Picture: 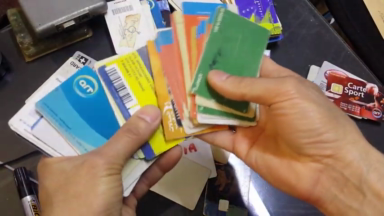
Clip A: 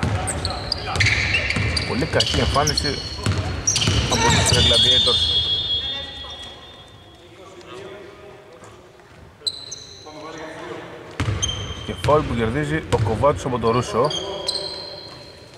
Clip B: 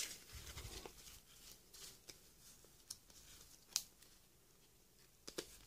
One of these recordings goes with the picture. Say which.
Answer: B